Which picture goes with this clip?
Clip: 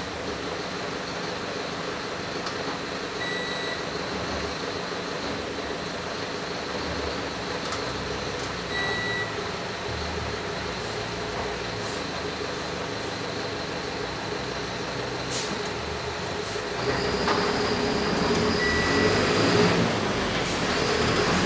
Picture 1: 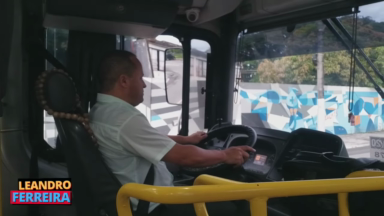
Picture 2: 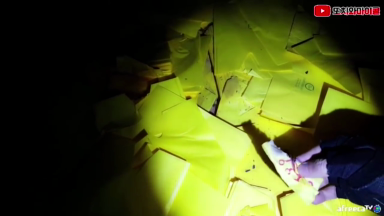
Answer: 1